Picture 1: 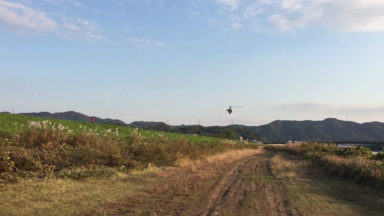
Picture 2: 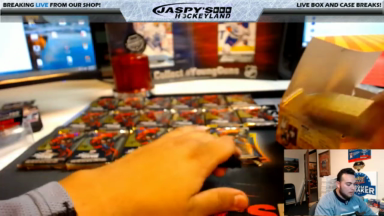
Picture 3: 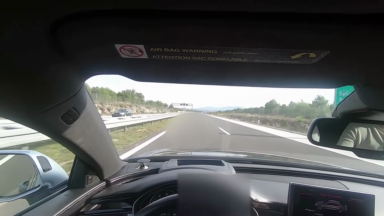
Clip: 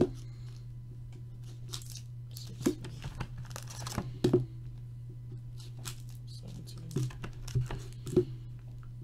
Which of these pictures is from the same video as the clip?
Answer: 2